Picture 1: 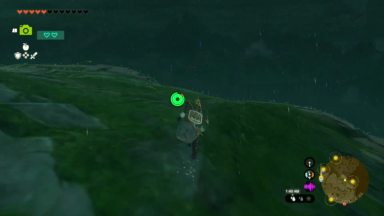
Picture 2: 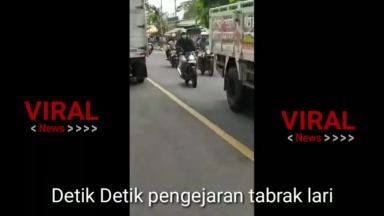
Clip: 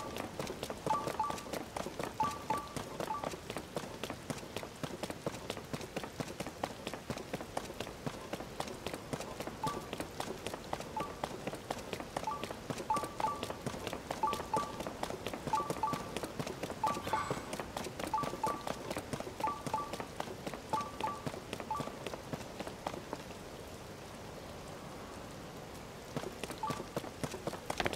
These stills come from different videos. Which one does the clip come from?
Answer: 1